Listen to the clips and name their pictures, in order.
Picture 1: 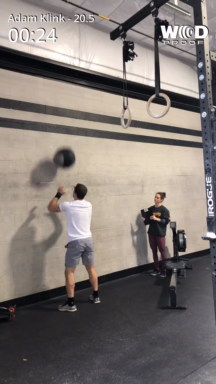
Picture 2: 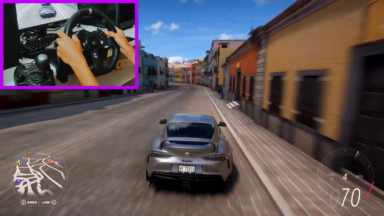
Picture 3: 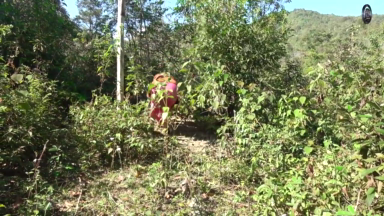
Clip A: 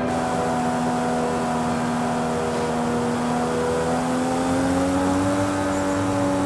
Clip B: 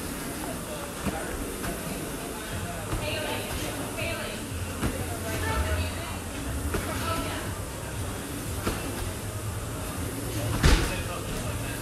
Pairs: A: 2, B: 1